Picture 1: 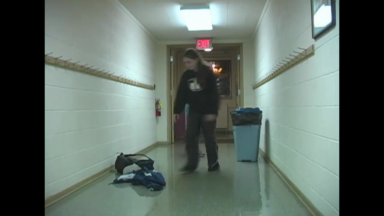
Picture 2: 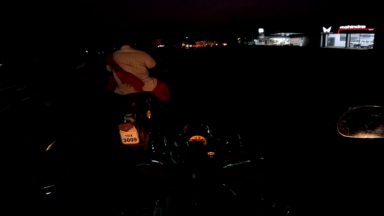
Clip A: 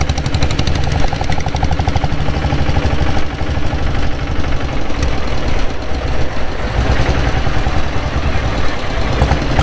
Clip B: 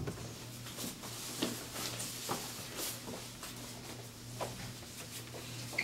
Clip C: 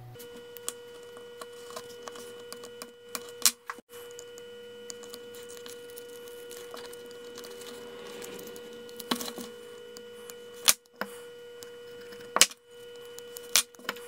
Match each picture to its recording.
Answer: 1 B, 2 A